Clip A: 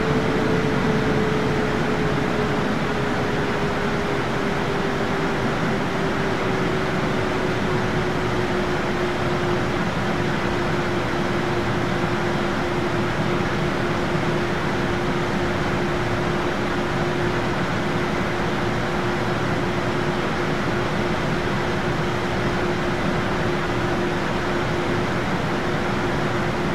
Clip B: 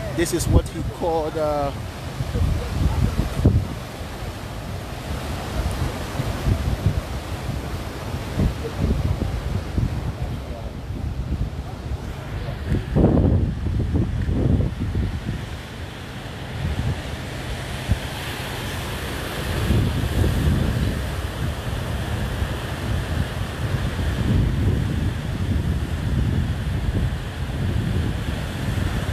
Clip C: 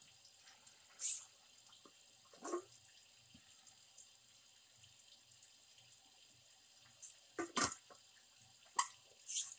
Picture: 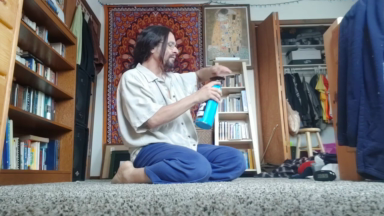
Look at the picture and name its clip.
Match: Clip C